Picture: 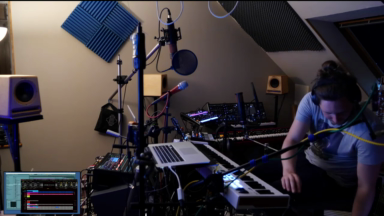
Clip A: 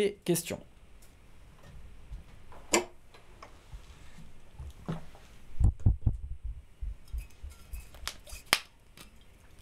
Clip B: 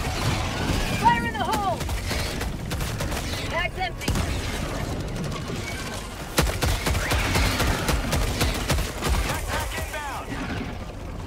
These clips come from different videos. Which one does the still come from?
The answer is A